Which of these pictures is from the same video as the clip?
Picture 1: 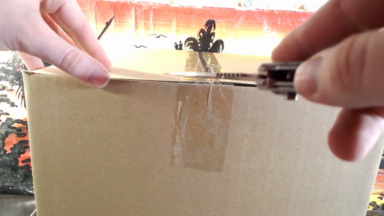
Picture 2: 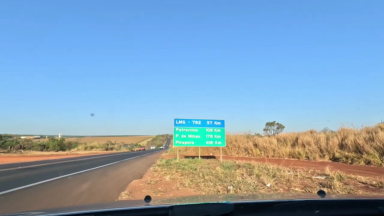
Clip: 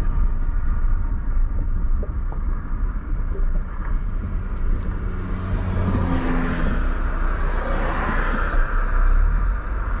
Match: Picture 2